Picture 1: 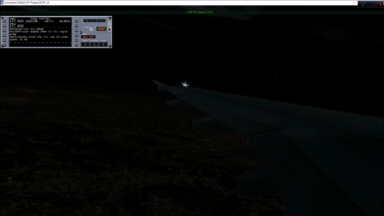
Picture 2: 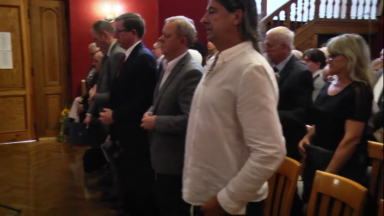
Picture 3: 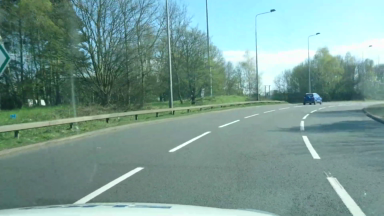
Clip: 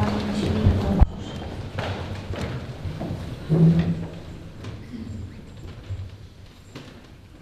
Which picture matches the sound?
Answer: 2